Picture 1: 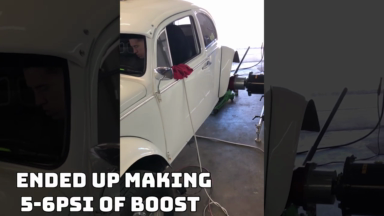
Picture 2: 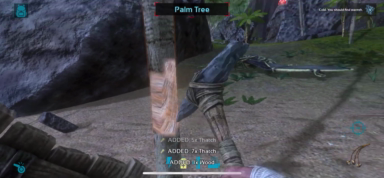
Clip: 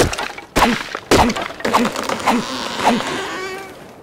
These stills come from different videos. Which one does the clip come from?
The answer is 2